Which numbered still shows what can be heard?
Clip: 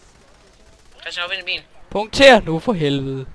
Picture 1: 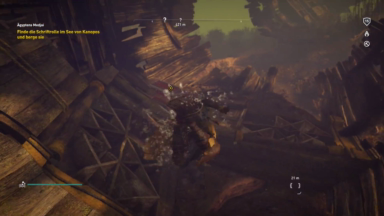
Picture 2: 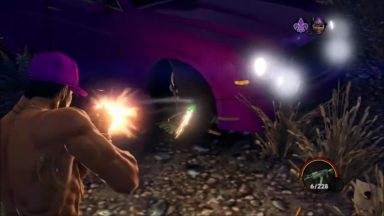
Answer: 2